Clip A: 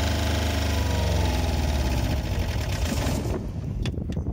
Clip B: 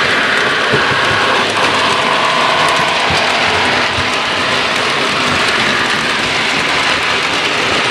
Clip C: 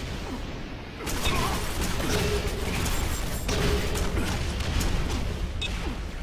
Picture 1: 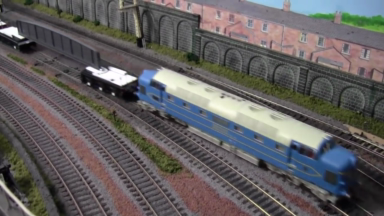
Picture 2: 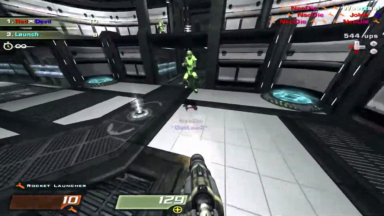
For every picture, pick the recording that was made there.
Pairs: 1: B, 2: C